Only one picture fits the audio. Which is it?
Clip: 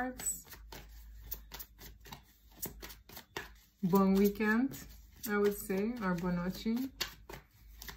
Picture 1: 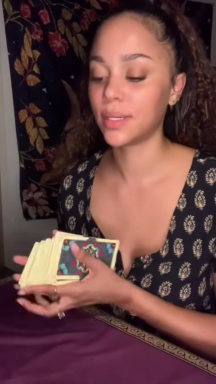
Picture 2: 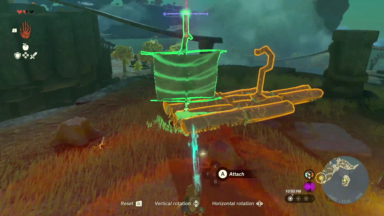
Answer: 1